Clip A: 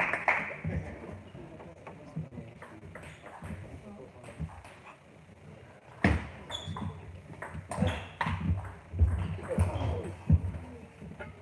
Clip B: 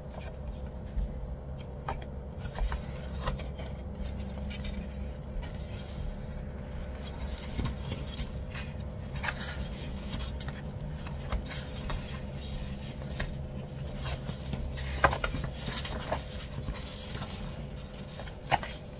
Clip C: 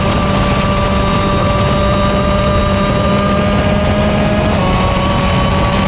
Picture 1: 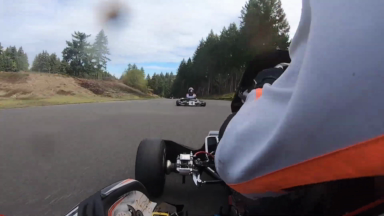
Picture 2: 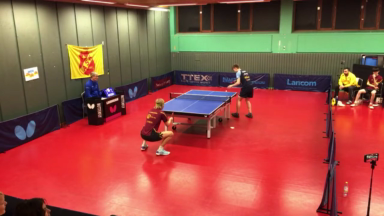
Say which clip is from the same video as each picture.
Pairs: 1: C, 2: A